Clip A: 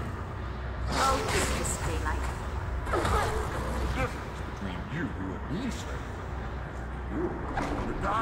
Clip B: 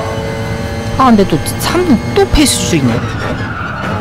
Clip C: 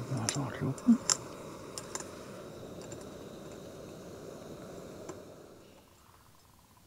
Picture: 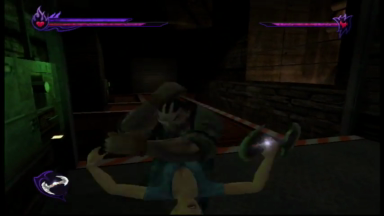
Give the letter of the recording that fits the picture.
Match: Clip A